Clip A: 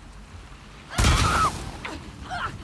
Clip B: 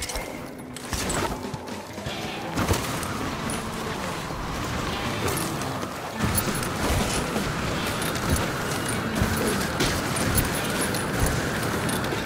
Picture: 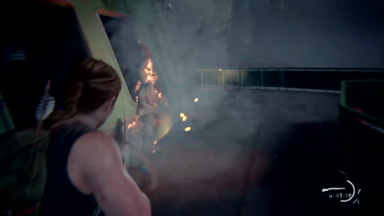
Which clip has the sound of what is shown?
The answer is A